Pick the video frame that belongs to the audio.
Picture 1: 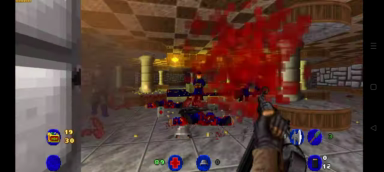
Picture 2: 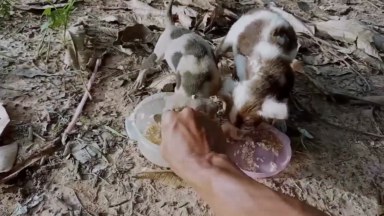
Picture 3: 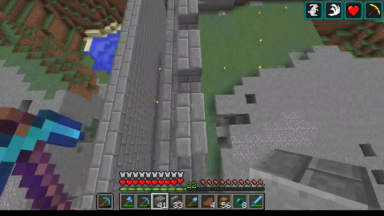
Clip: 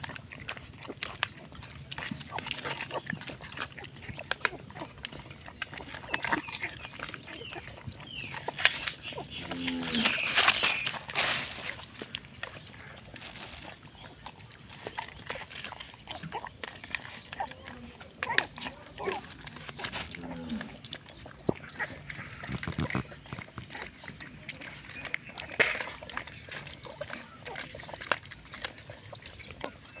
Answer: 2